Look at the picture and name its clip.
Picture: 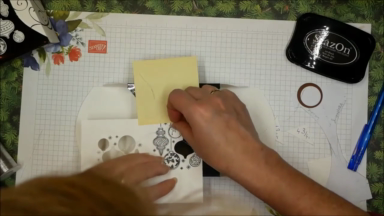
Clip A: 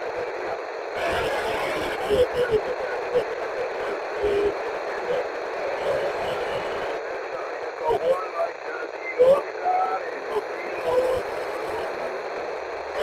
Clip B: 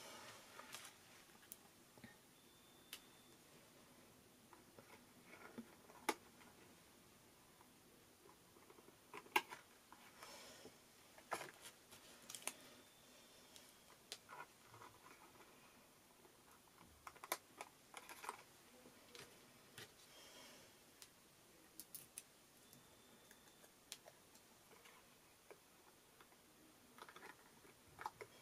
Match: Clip B